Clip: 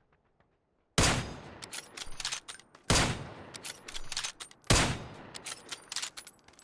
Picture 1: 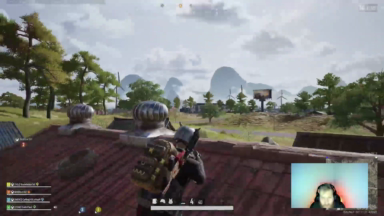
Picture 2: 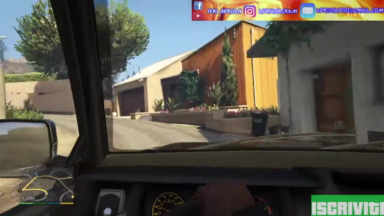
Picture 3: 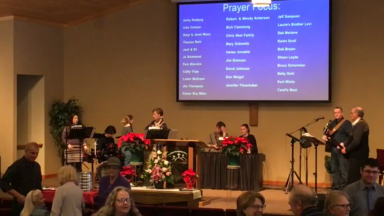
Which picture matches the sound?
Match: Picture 1